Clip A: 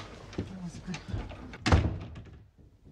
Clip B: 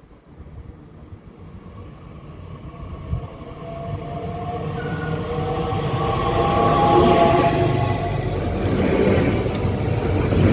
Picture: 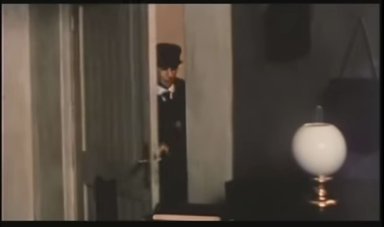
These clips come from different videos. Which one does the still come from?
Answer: A